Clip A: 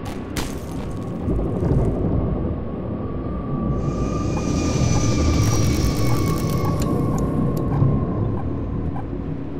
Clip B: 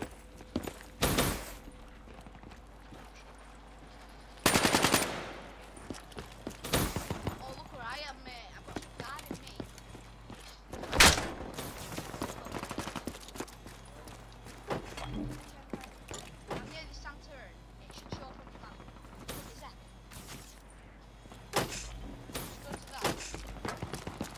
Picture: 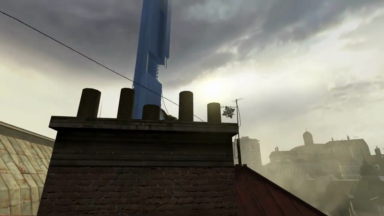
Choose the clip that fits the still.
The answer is A